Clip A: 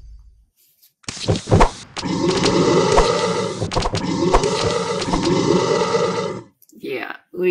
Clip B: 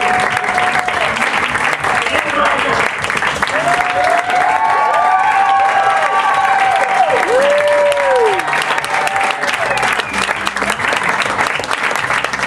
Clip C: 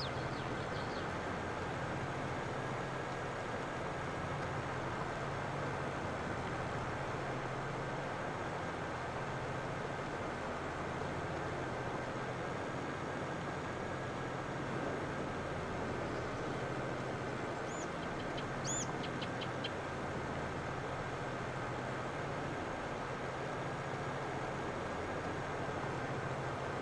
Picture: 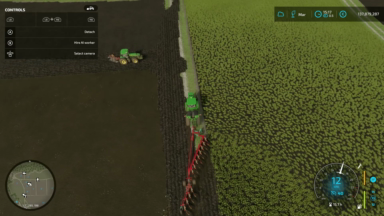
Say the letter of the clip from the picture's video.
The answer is C